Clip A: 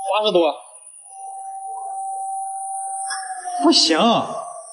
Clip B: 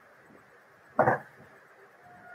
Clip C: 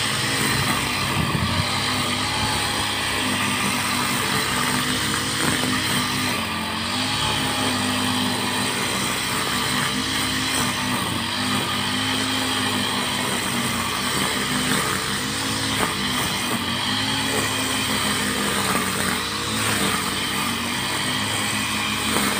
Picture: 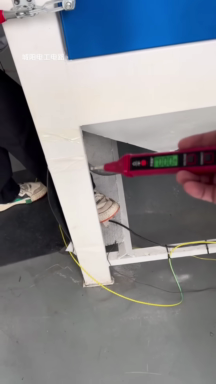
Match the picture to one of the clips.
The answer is A